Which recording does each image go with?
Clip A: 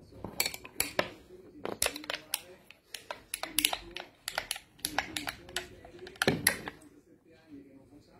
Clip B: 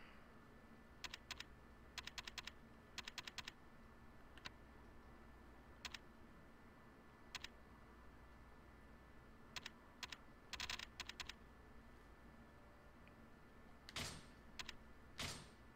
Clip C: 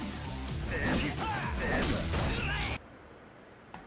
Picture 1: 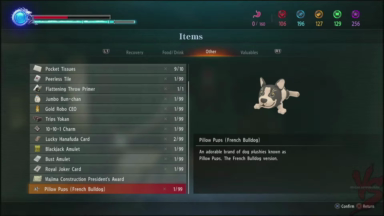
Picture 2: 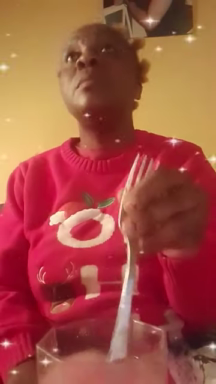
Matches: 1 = B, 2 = A